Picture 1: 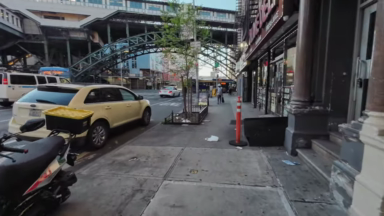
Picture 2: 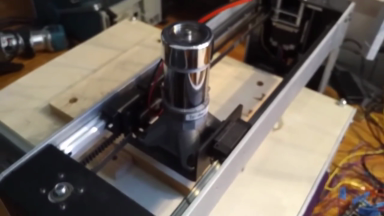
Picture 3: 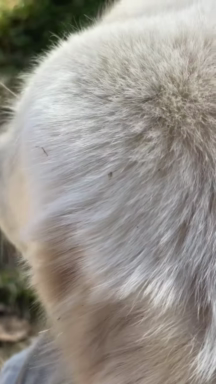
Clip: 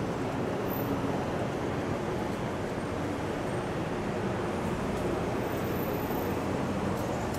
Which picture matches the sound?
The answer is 1